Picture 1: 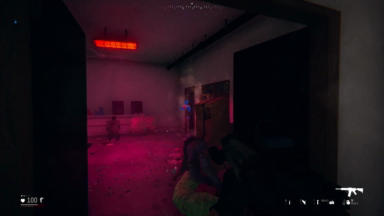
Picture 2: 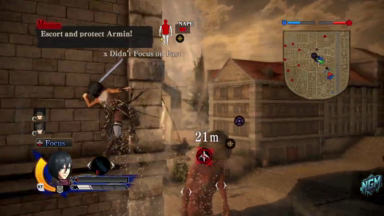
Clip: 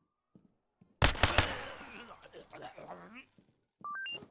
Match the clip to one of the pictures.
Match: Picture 1